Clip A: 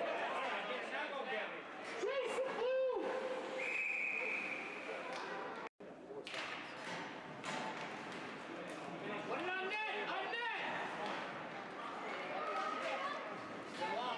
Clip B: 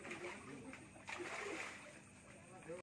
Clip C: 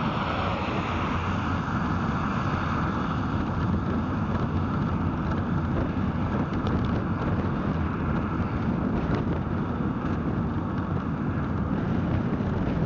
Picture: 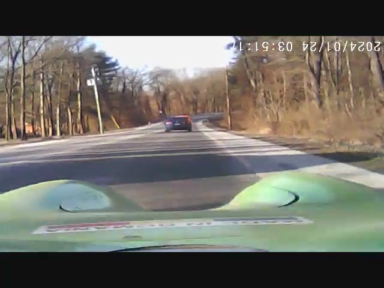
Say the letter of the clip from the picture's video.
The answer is C